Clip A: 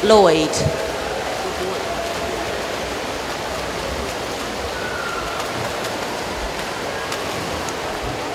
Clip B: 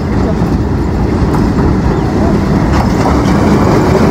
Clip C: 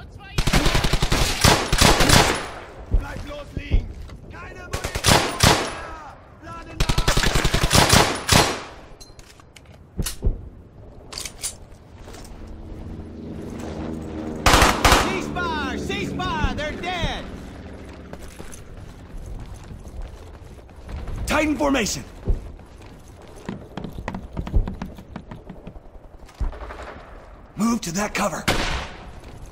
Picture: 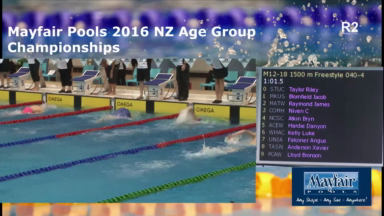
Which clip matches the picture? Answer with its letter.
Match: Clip A